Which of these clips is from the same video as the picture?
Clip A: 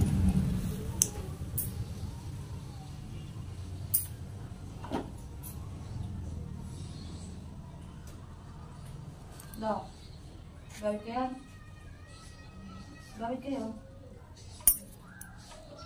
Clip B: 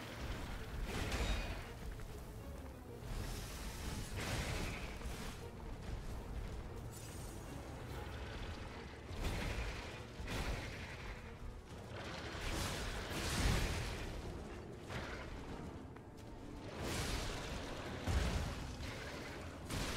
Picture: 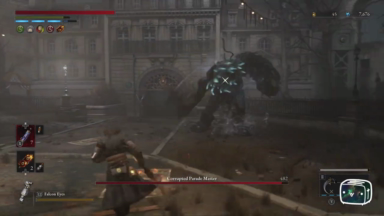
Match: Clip B